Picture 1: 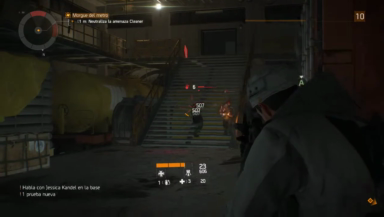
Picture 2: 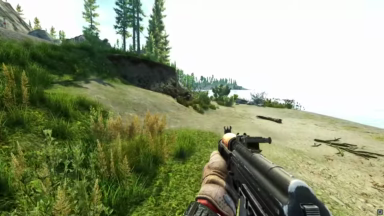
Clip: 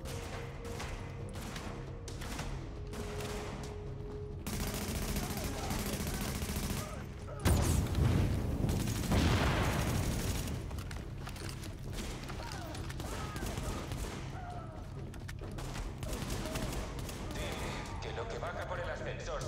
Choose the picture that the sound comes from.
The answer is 1